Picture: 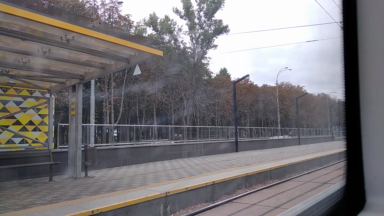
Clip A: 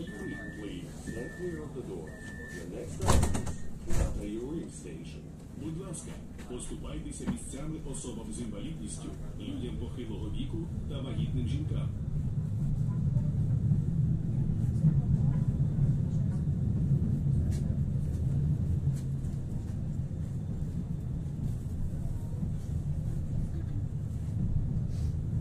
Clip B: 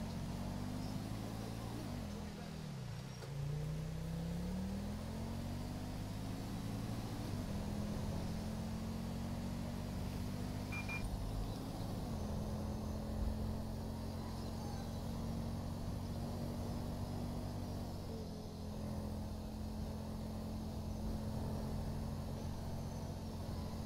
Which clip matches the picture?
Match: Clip A